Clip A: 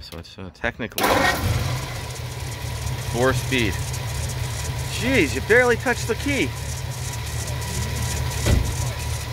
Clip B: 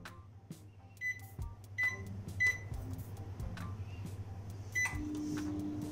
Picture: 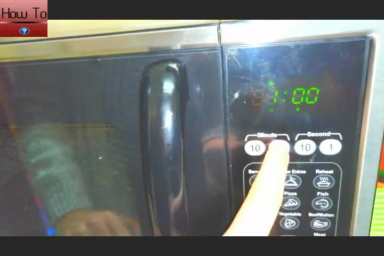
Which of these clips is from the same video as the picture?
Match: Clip B